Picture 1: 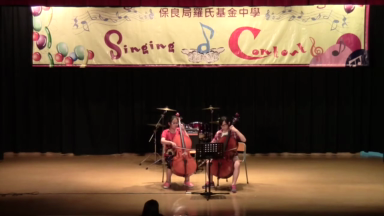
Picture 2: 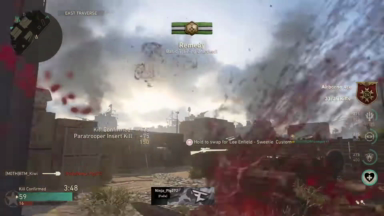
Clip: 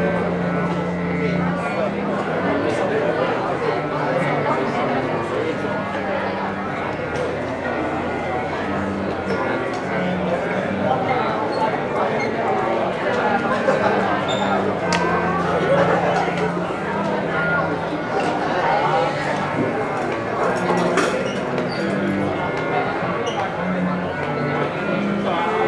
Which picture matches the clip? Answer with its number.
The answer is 1